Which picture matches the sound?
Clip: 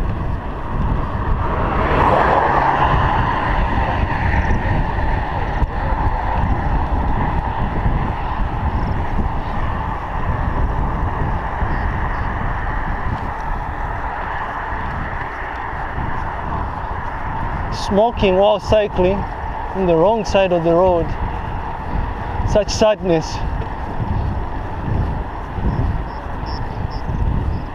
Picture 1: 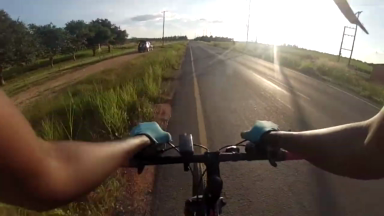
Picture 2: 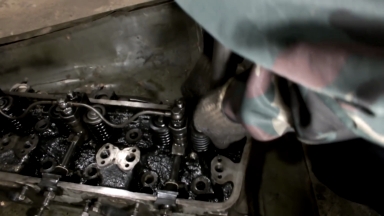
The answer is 1